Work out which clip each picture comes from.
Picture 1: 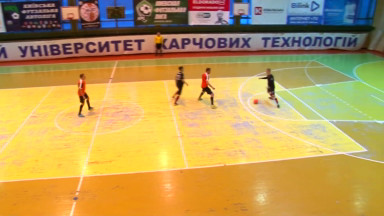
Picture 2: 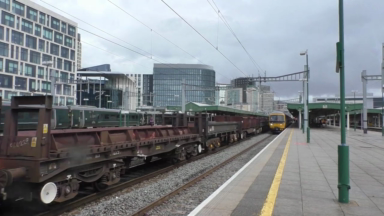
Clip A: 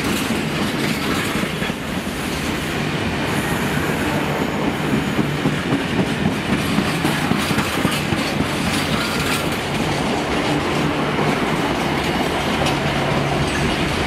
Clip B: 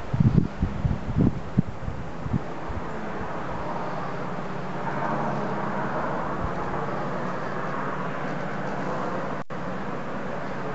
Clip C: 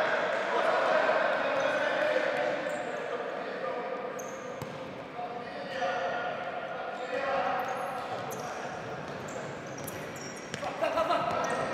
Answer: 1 C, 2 A